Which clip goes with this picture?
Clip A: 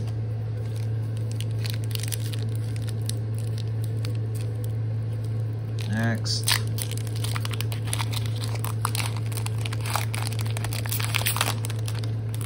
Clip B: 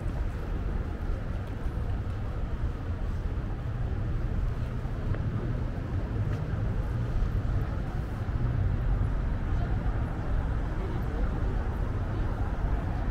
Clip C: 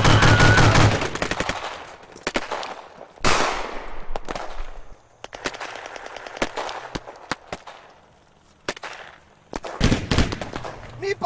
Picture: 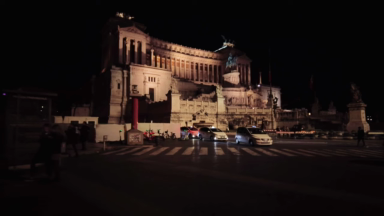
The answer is B